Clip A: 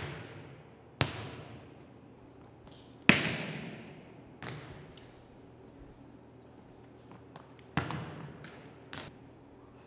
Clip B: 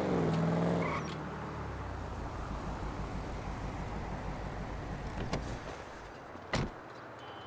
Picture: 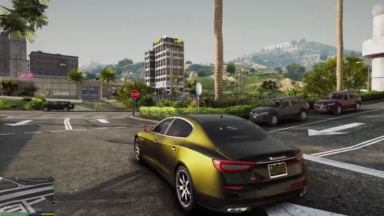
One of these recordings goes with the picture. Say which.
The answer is B